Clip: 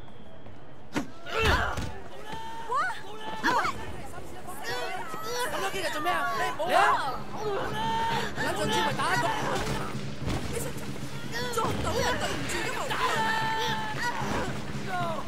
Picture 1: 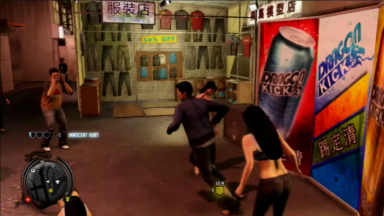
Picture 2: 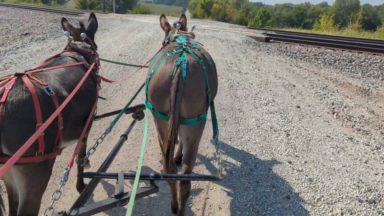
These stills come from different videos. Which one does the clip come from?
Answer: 1